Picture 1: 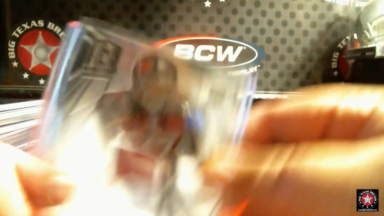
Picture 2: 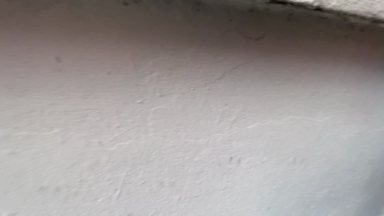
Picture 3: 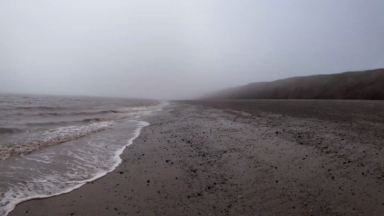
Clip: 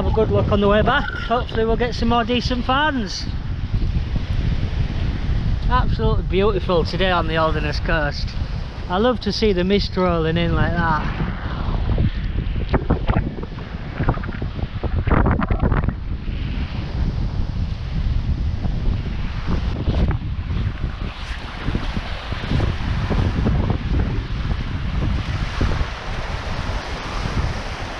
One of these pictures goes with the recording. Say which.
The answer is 3